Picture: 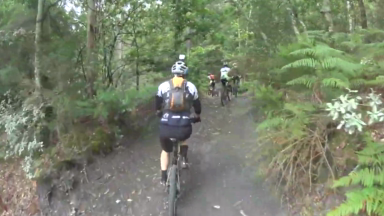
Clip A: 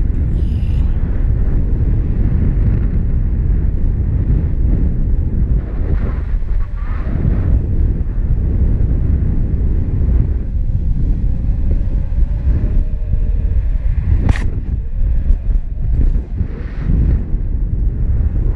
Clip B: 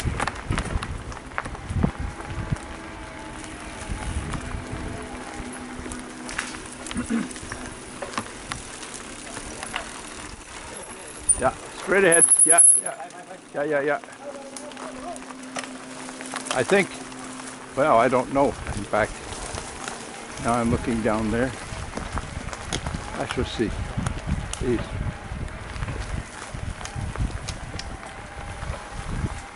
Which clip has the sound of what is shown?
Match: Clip B